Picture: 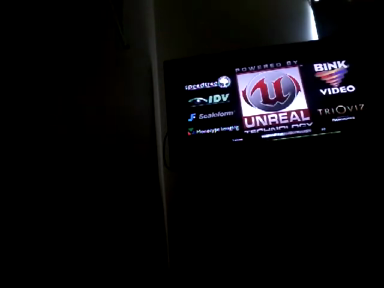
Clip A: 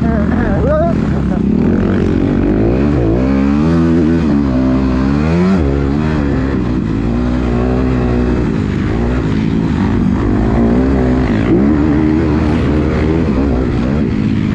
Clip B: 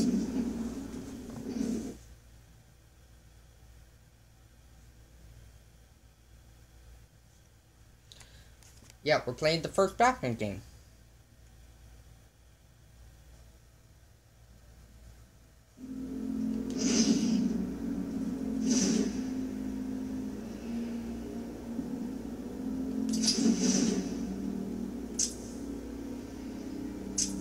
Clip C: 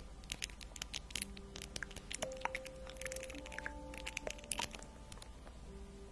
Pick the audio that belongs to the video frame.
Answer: B